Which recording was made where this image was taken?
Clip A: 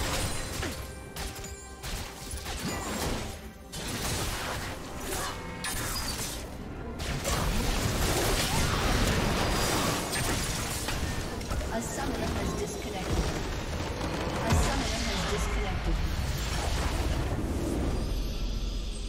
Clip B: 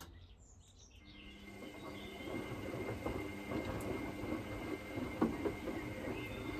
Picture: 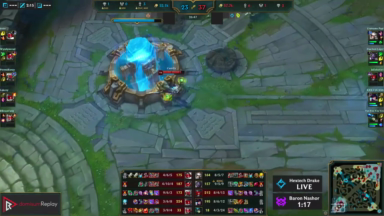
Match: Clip A